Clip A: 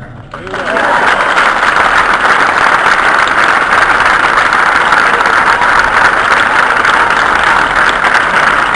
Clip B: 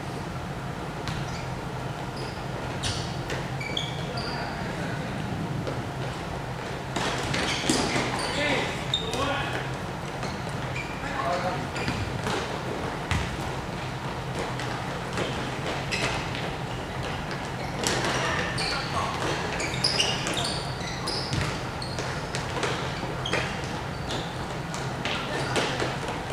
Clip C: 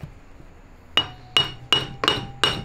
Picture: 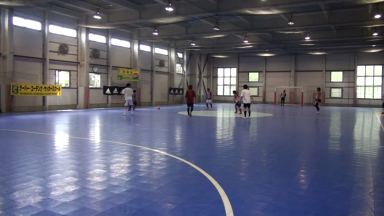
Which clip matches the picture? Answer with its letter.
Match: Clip B